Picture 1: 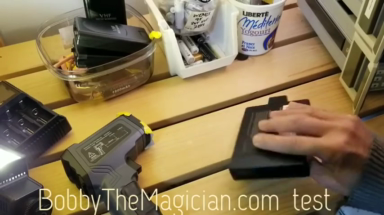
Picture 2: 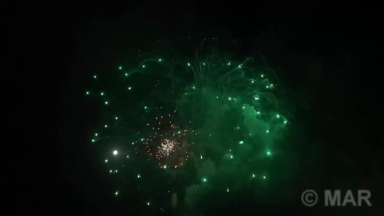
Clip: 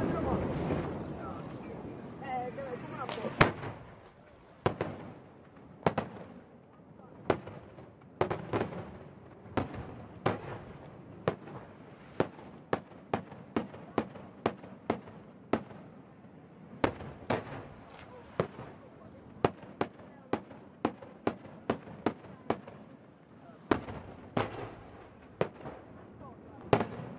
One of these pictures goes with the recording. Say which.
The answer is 2